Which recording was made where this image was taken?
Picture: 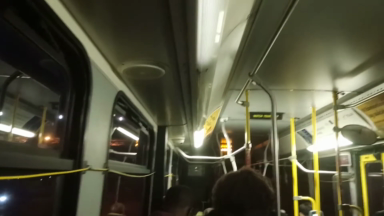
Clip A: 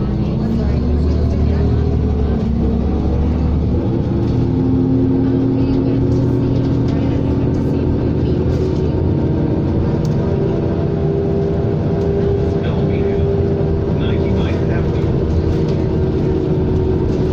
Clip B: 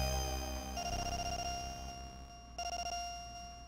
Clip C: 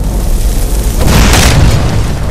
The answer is A